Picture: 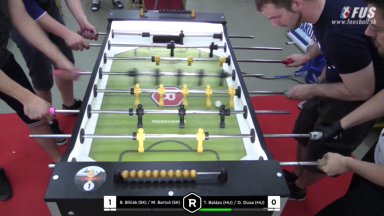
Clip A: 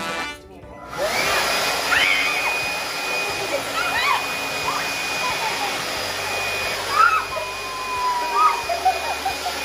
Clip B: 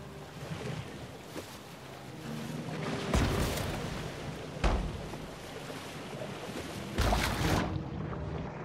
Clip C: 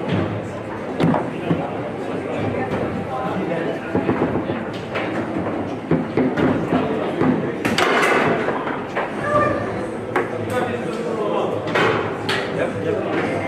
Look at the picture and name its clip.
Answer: C